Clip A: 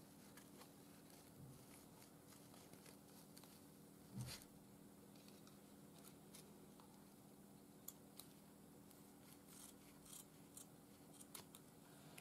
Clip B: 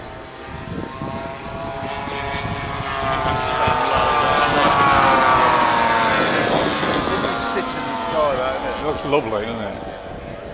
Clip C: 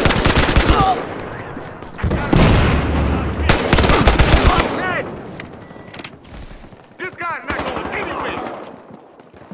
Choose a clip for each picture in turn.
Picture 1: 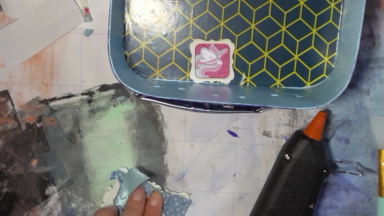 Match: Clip A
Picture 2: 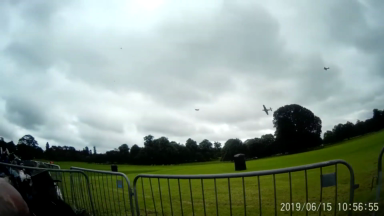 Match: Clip B